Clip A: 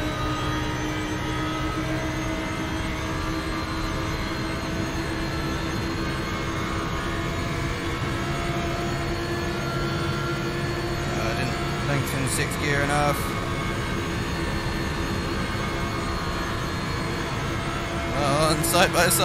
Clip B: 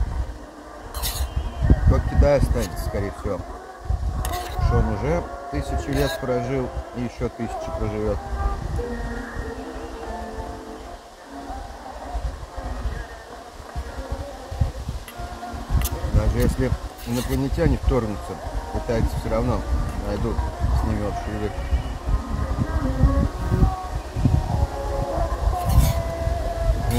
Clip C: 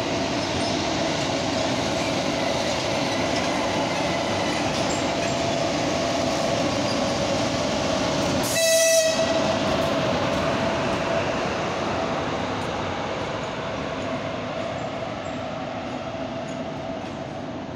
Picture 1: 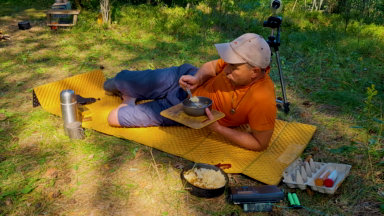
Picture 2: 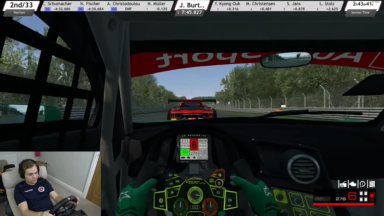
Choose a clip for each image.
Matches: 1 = B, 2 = A